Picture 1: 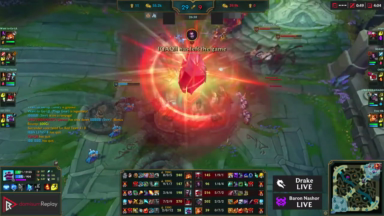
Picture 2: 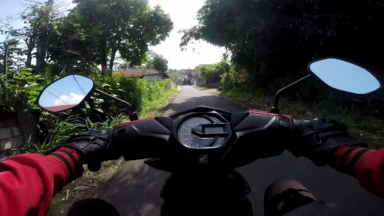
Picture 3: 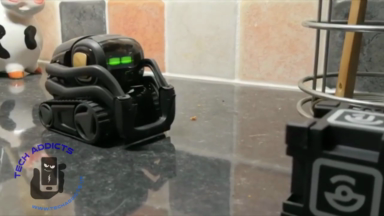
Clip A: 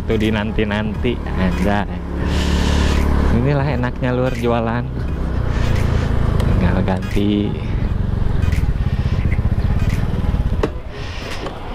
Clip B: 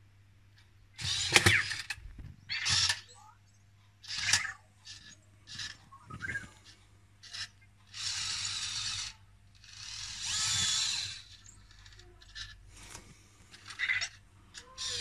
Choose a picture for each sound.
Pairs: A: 2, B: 3